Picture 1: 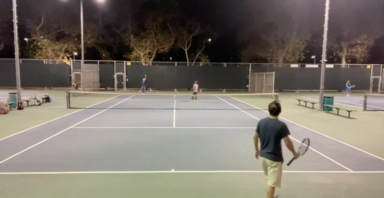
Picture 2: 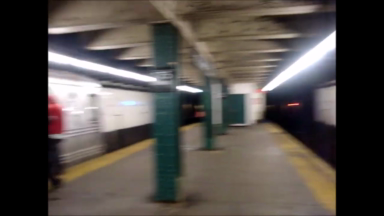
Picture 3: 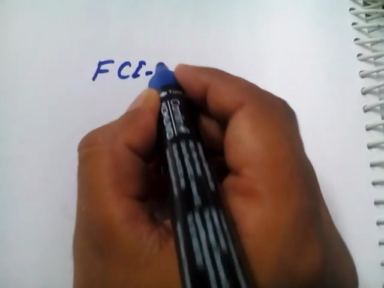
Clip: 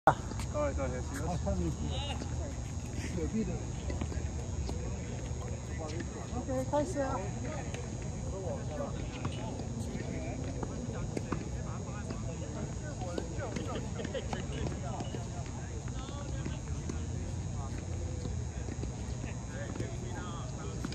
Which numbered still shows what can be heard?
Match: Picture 1